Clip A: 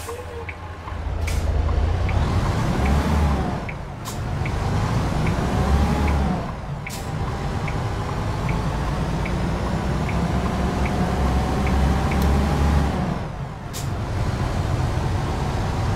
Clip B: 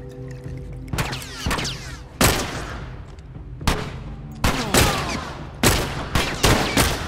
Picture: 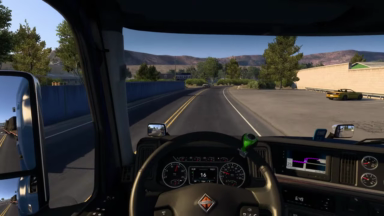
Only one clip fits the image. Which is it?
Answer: A